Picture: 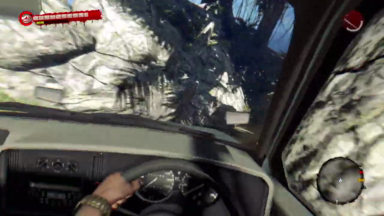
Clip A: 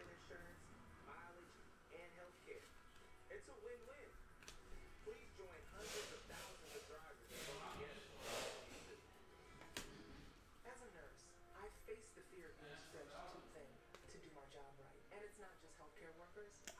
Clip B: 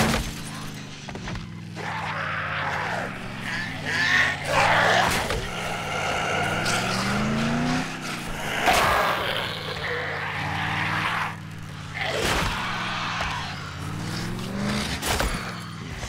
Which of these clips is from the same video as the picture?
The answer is B